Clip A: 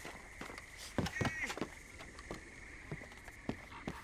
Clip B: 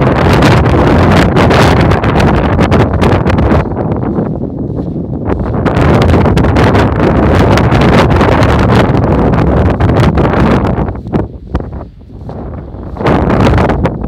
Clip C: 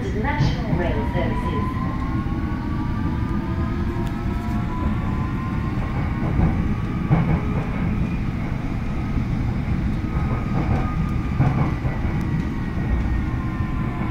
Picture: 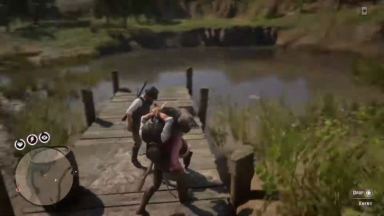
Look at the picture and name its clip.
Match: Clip A